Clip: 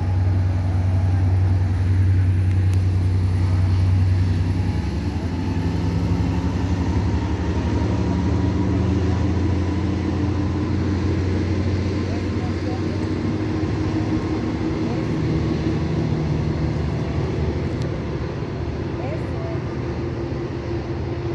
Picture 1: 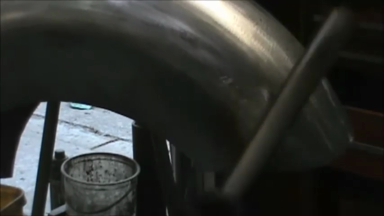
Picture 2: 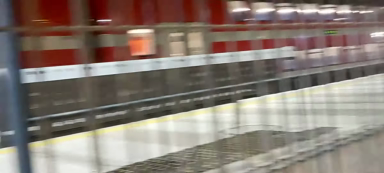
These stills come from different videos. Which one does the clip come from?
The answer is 2